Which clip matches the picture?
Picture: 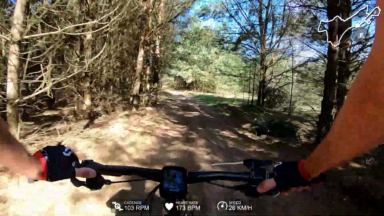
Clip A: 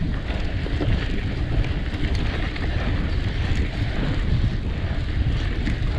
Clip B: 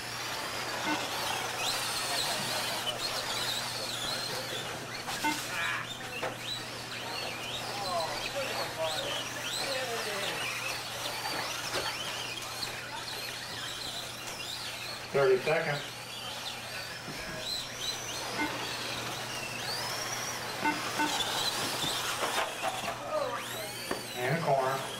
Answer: A